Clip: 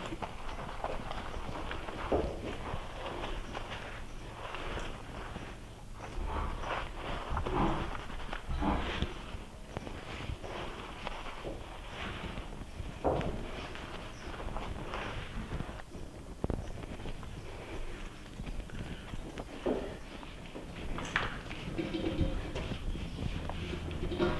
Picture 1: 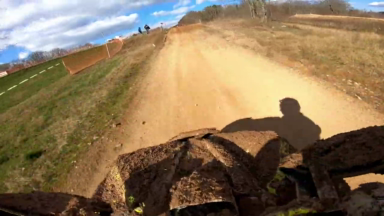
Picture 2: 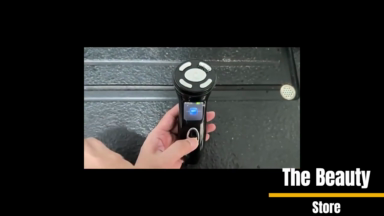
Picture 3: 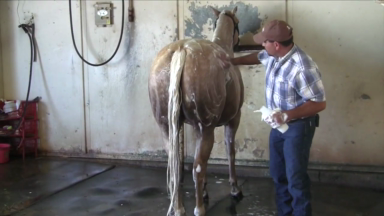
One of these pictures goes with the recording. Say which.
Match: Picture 3